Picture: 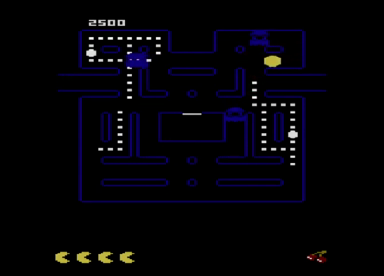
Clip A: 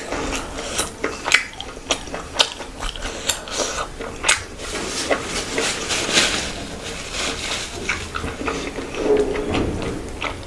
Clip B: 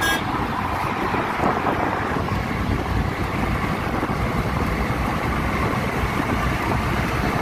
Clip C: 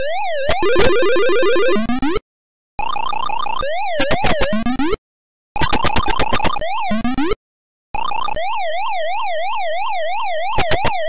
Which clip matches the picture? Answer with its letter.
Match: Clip C